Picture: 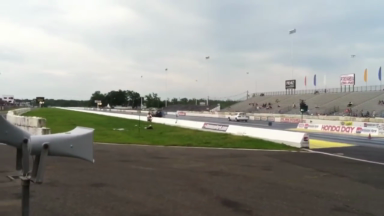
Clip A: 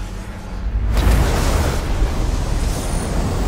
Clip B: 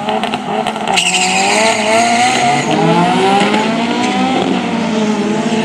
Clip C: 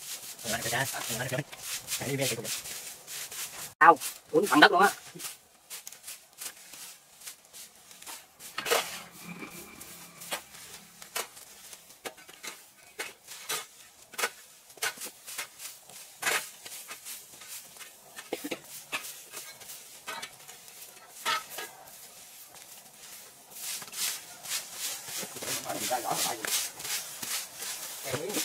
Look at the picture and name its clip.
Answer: B